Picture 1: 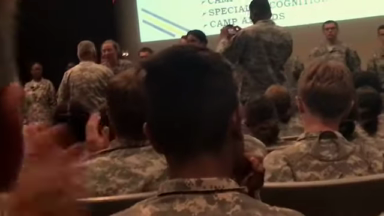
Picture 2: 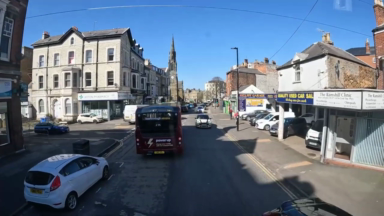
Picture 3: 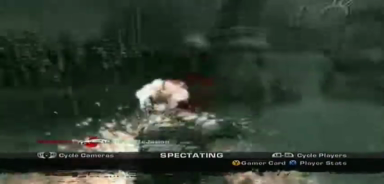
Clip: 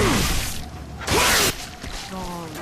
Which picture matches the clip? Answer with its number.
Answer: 3